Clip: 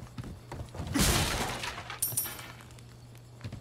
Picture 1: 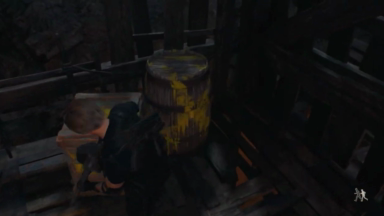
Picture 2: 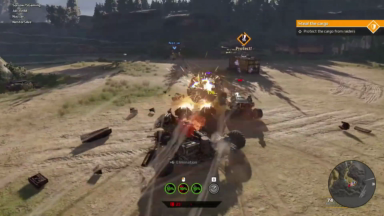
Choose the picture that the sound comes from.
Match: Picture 1